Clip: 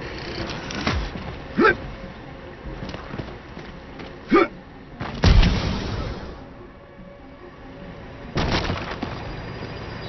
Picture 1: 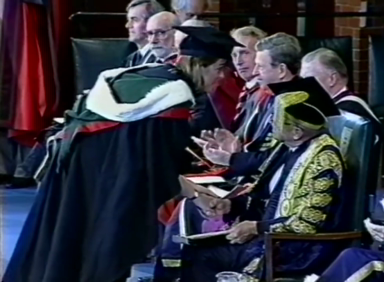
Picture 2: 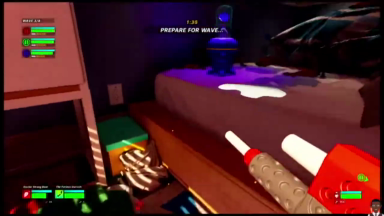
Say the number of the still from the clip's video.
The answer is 2